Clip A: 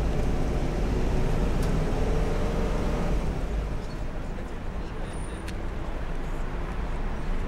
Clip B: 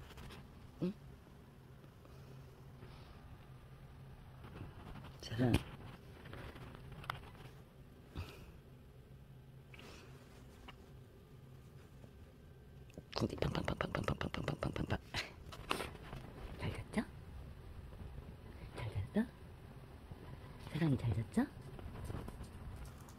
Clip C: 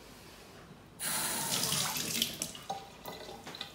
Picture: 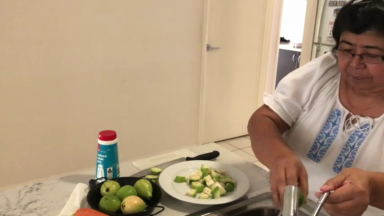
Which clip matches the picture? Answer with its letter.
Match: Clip C